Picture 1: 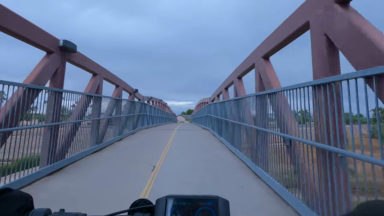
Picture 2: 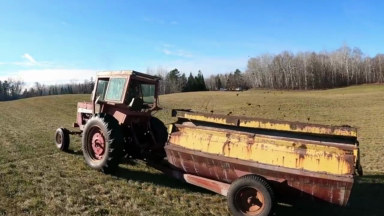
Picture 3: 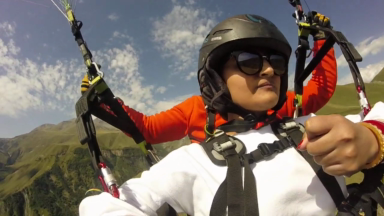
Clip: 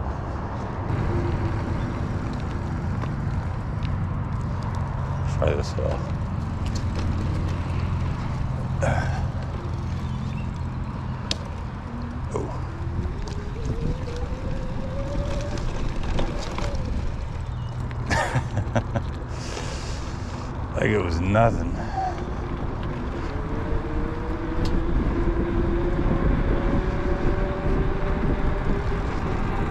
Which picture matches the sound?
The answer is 1